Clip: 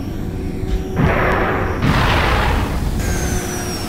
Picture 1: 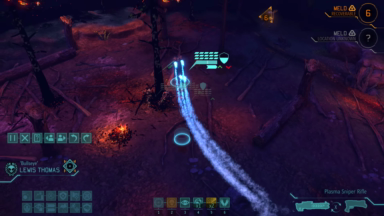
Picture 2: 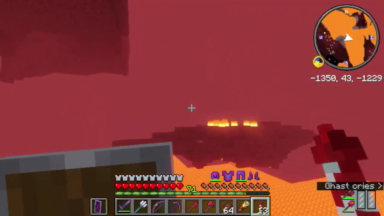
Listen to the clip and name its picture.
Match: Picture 1